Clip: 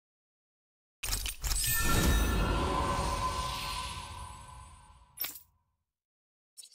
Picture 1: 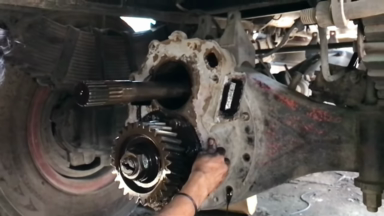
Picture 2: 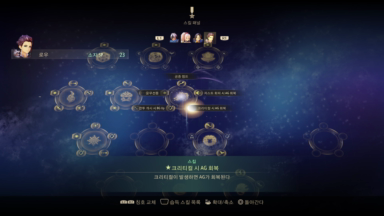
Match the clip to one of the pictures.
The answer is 2